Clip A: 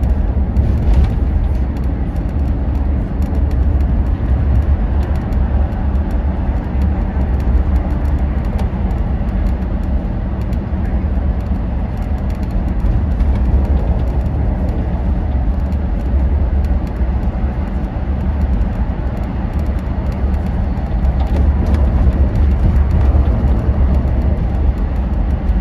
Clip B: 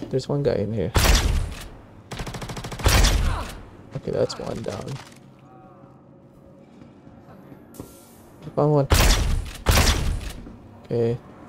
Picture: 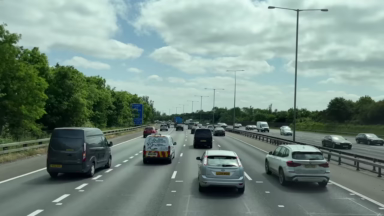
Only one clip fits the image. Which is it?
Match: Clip A